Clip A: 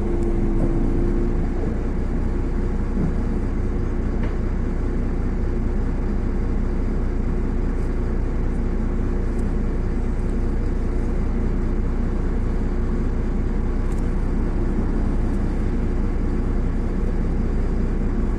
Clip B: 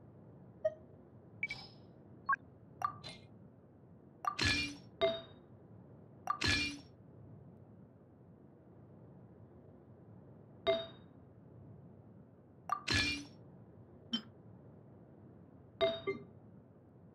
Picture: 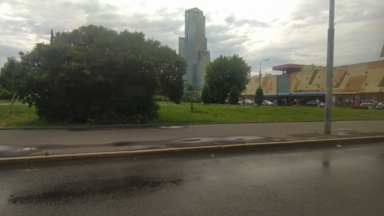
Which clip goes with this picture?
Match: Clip A